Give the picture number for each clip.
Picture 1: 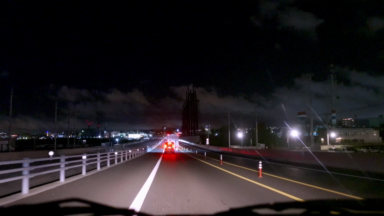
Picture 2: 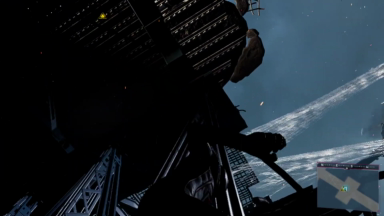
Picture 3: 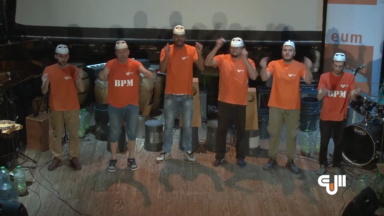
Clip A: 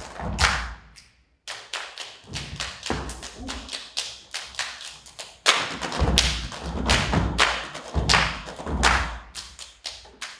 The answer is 3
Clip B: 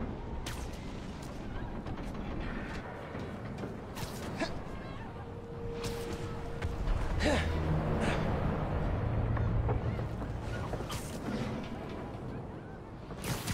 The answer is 2